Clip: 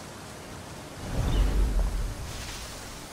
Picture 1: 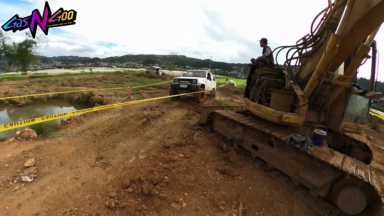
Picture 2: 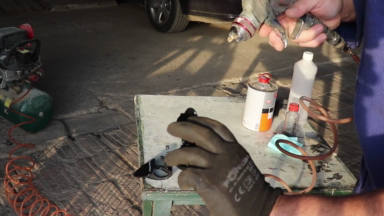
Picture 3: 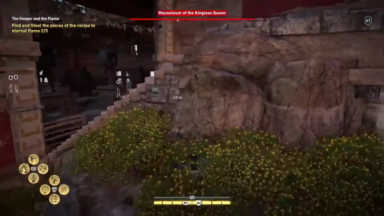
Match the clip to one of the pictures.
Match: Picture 3